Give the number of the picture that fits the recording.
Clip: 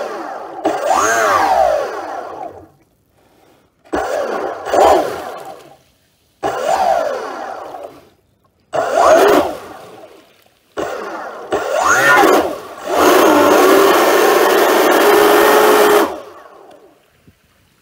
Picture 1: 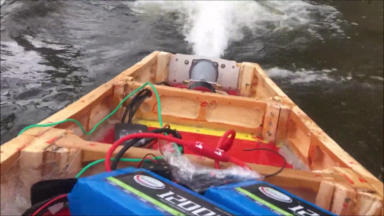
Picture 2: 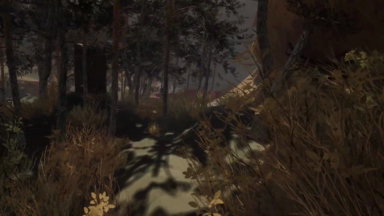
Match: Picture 1